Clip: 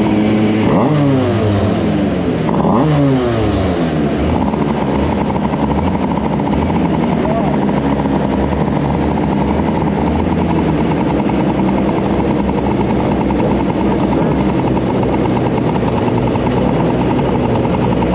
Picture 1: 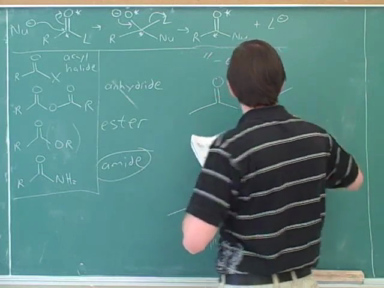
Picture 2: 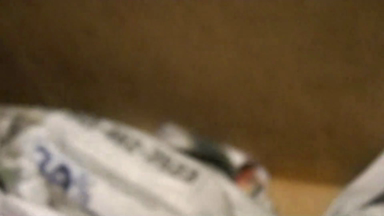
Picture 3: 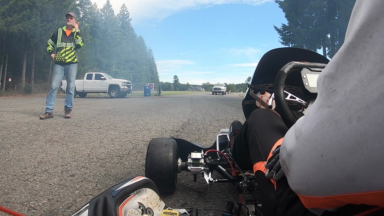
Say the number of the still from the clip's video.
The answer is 3